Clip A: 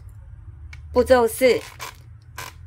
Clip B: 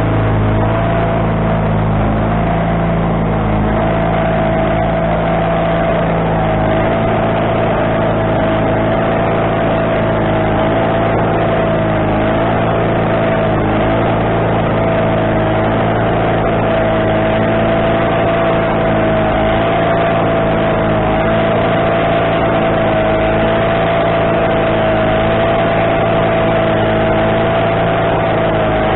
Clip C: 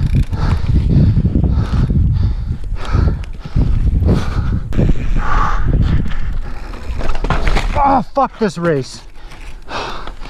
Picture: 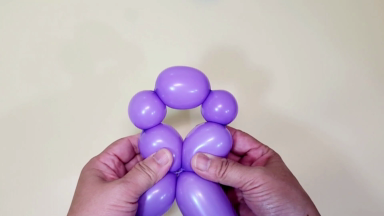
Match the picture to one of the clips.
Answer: A